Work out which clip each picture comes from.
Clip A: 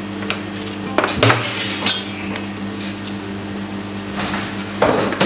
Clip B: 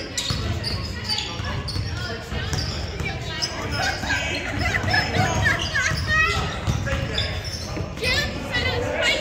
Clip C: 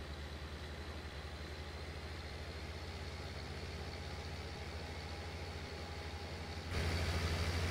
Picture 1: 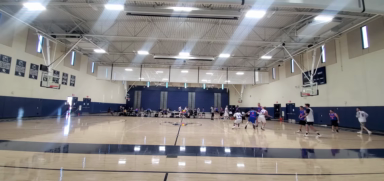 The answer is B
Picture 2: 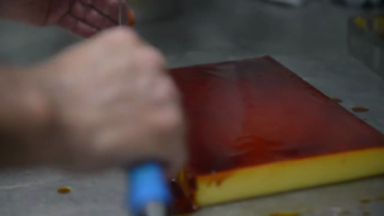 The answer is A